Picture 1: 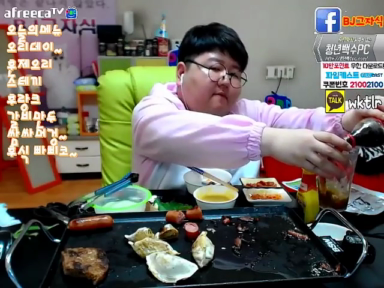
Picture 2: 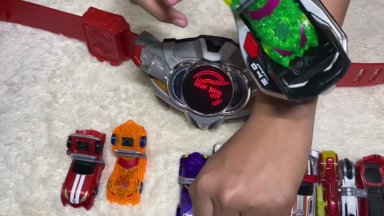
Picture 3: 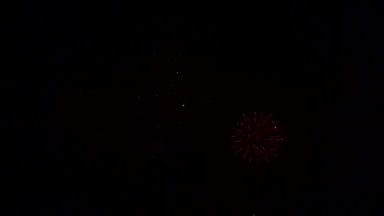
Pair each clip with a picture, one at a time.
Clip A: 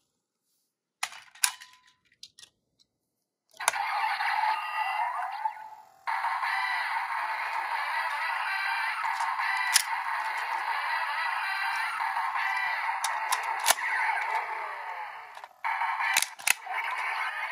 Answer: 2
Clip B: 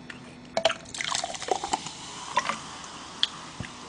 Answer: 1